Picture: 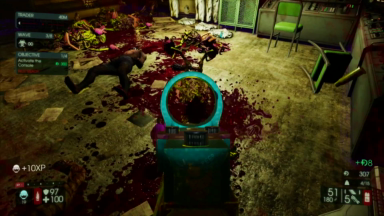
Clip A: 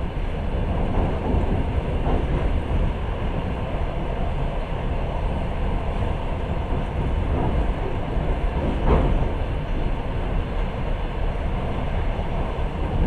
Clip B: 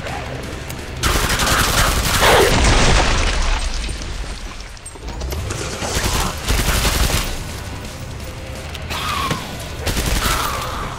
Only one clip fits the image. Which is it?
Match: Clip B